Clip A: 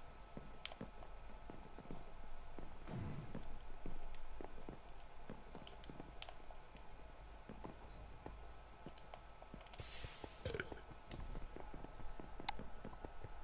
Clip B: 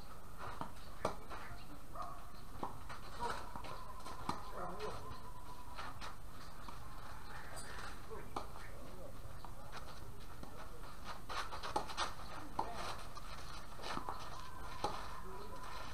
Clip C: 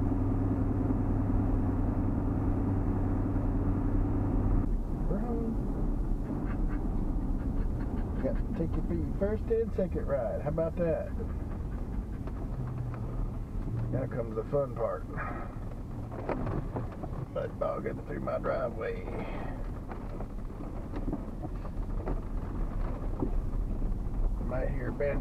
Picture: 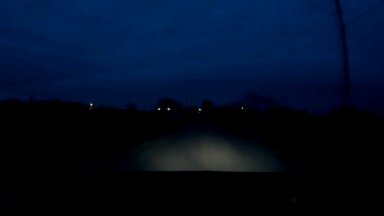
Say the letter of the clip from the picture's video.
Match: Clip C